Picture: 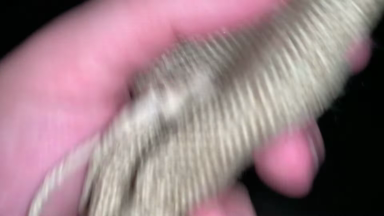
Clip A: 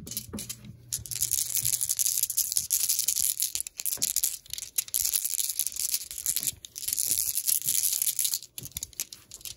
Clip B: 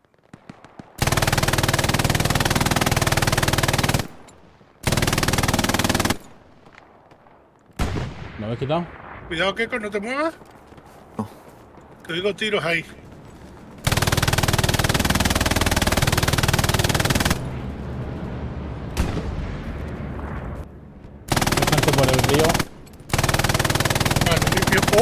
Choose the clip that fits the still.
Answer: A